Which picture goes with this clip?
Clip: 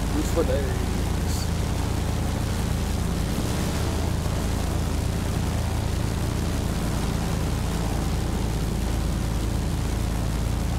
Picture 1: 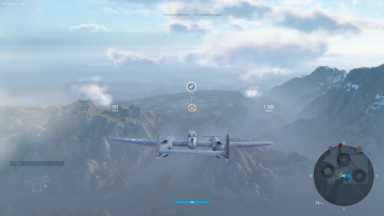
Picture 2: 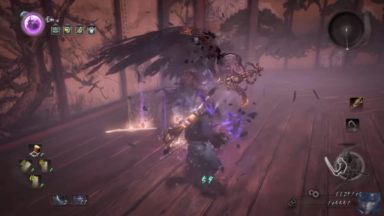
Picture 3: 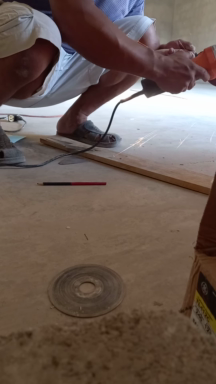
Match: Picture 1